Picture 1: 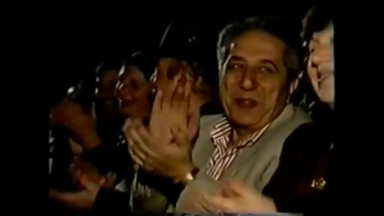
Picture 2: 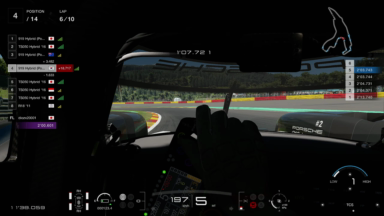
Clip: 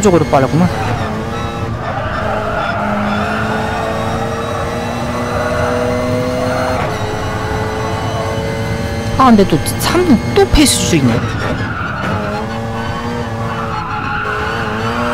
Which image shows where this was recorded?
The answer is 2